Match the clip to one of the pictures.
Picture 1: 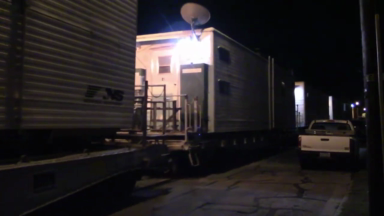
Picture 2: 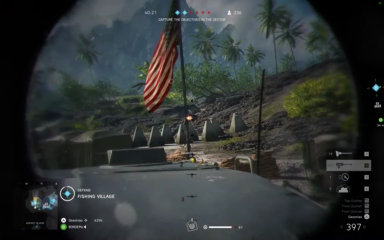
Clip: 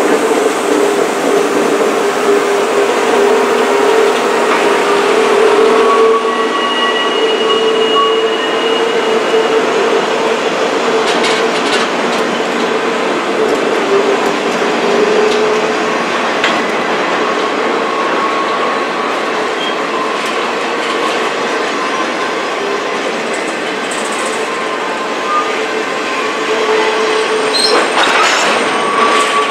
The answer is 1